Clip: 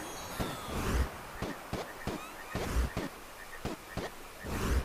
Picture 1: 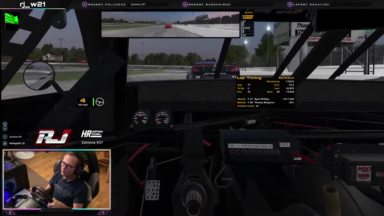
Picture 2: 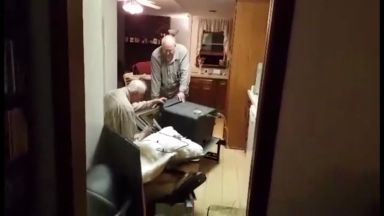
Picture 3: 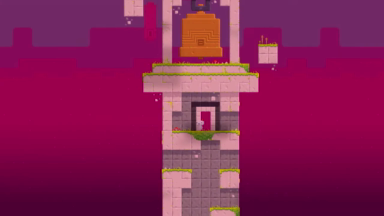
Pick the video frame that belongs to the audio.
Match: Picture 3